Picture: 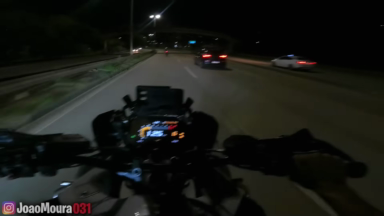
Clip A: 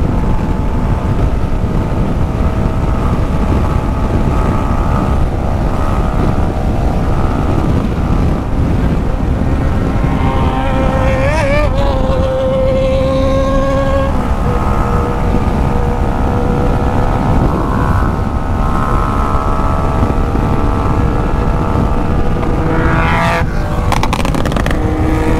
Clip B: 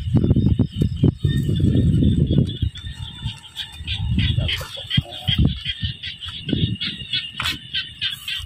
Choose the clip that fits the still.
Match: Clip A